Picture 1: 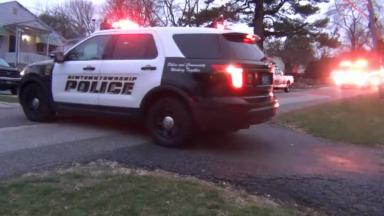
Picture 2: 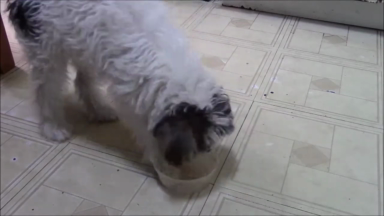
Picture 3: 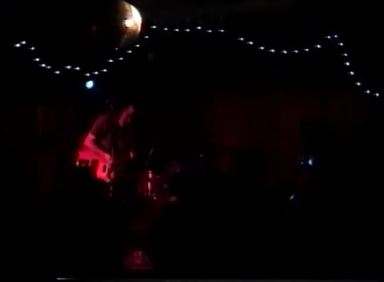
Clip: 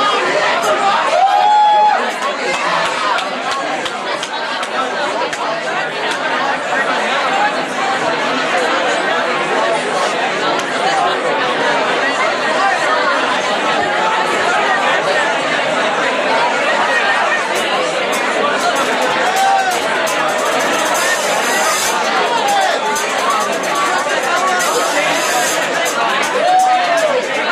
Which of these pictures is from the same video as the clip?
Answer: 3